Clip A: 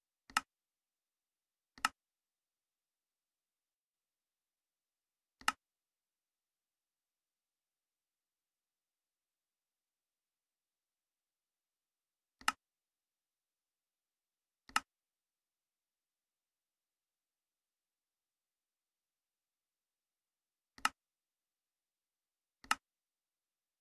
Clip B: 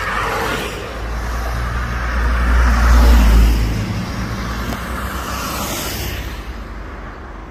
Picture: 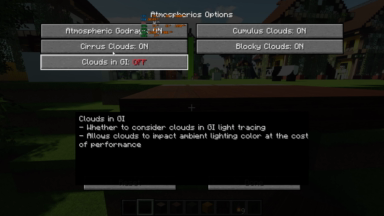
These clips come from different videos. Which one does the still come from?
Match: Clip A